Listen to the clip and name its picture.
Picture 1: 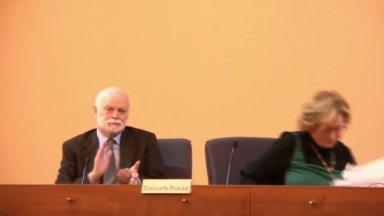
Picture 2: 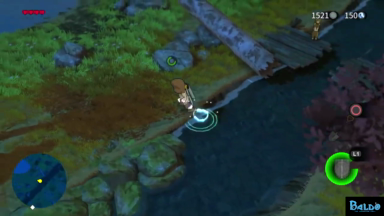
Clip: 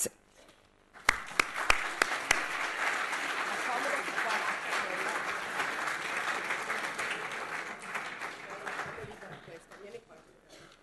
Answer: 1